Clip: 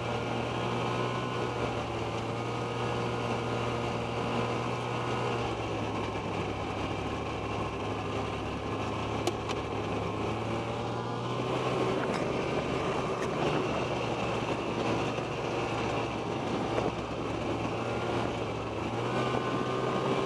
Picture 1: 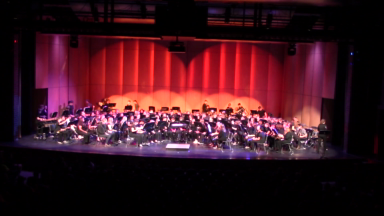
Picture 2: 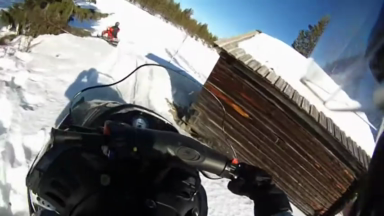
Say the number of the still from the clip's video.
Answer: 2